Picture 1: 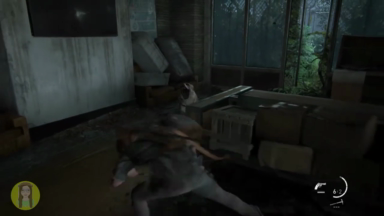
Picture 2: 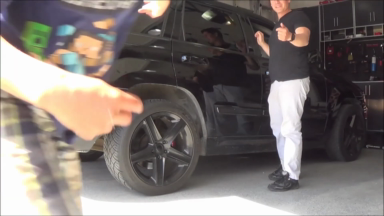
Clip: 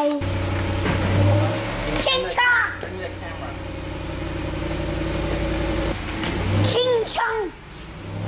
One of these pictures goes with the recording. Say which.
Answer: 2